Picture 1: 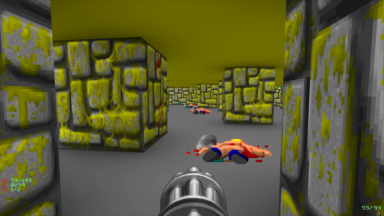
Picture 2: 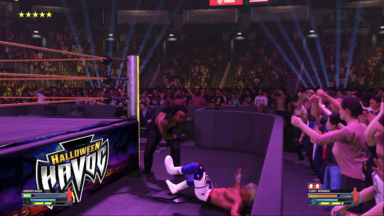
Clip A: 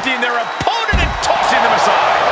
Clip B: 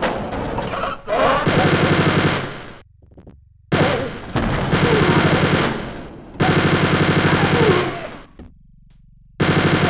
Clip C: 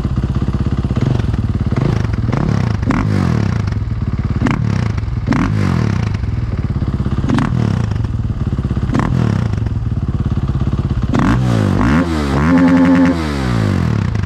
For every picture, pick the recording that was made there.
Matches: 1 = B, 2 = A